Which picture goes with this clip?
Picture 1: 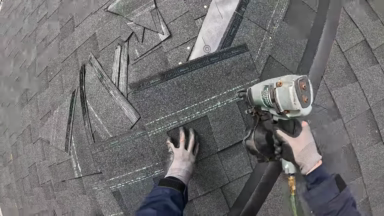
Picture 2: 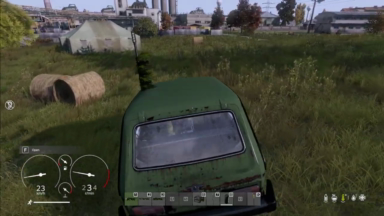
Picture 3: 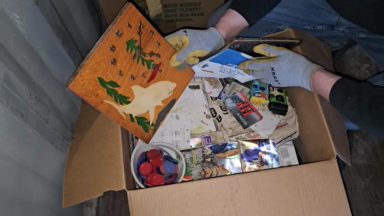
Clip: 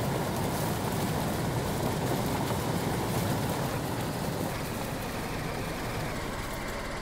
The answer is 2